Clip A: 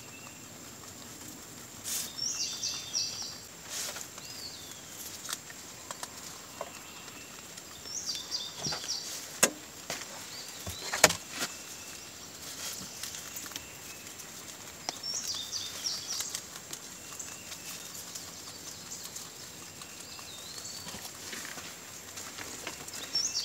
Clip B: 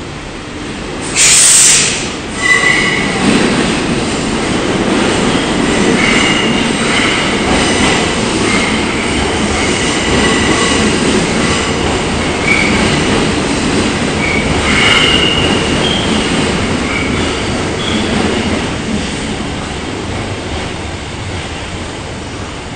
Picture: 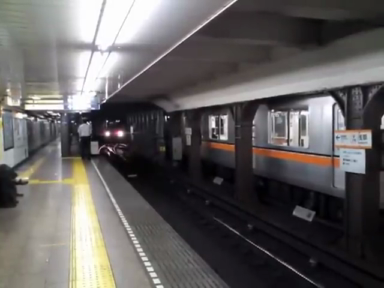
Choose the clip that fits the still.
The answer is B